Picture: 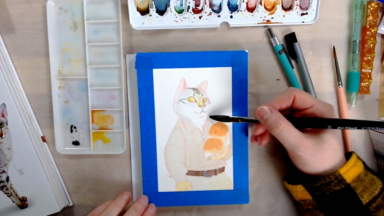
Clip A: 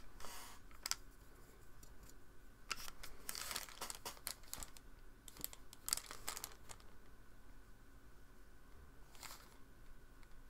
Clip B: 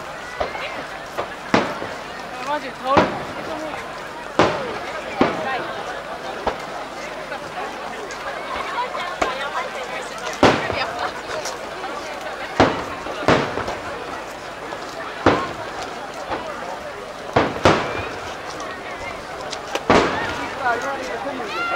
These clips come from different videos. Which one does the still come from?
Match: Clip A